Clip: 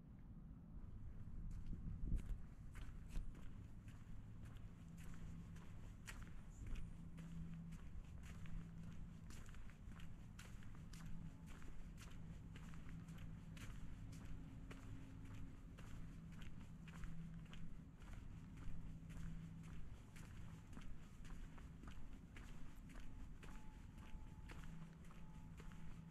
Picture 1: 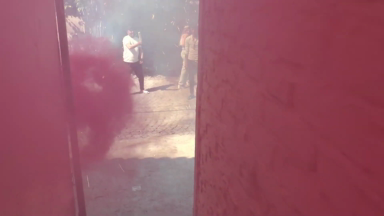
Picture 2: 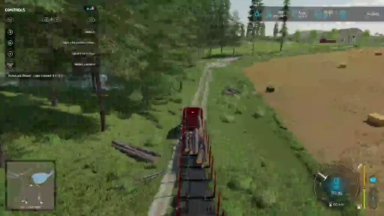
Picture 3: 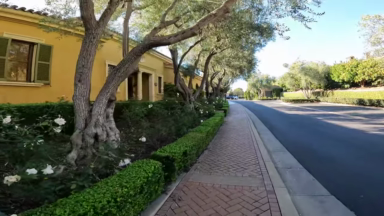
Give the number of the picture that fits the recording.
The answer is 3